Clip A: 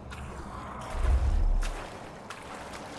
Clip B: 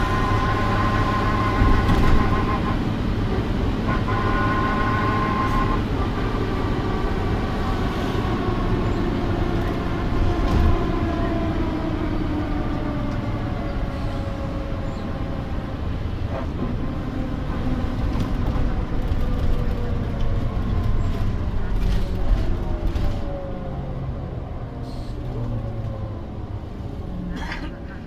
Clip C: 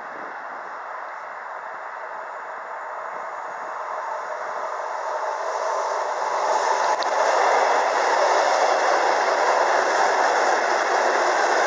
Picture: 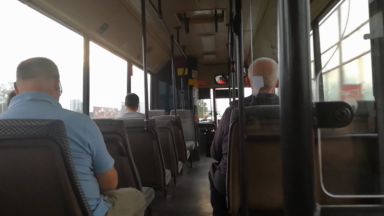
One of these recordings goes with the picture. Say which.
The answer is B